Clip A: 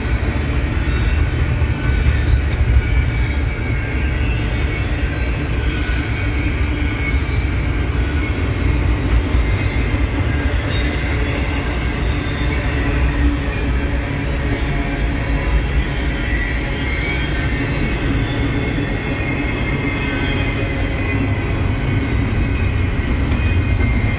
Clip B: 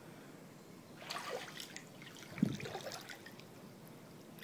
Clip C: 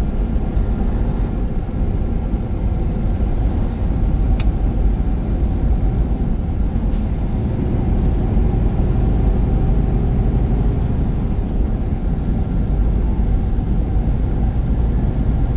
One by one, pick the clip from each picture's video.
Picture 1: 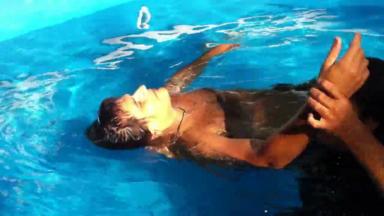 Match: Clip B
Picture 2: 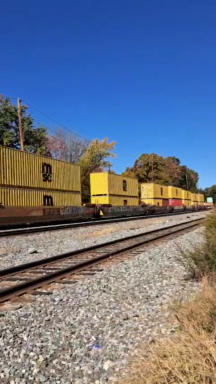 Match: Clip A